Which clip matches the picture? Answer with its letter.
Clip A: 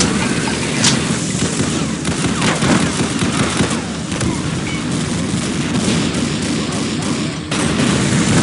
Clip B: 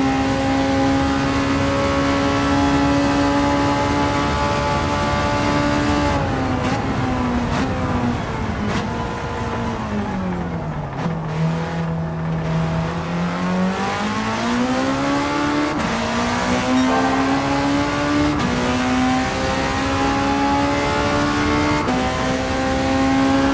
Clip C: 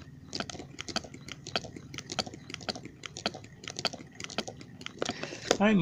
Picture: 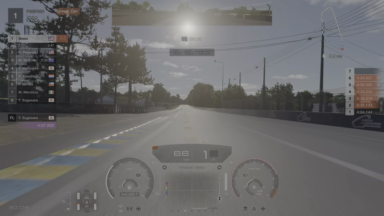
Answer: B